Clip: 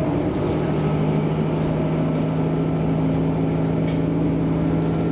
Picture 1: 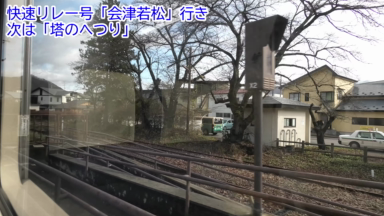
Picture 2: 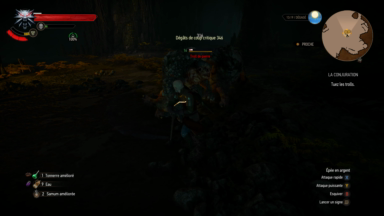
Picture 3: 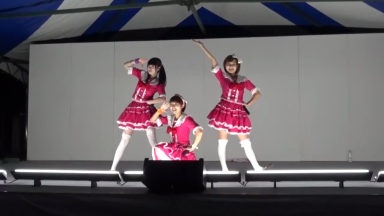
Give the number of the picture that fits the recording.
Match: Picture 1